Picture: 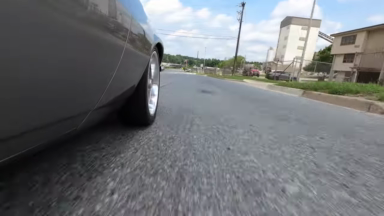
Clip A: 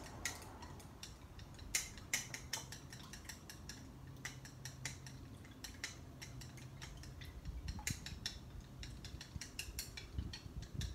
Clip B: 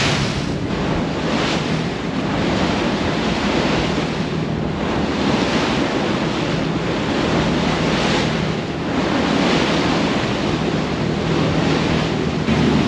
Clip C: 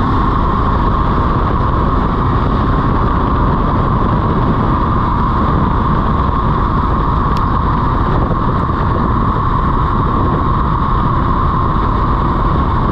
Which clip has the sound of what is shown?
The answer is C